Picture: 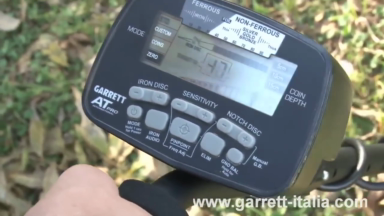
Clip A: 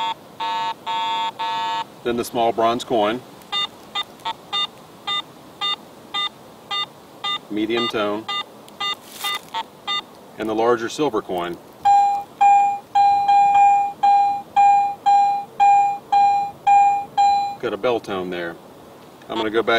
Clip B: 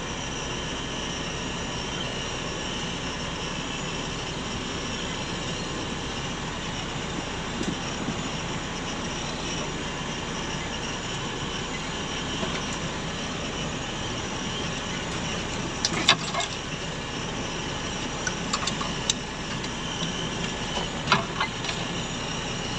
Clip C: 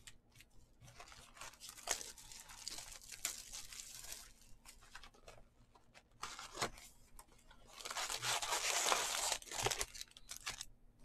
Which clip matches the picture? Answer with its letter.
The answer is A